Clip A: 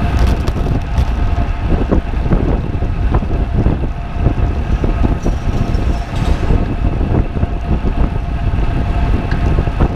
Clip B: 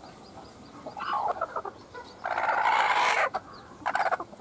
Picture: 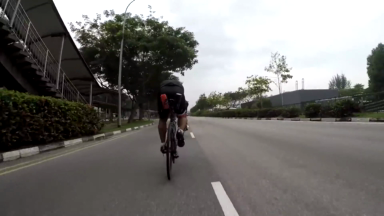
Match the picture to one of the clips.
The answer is A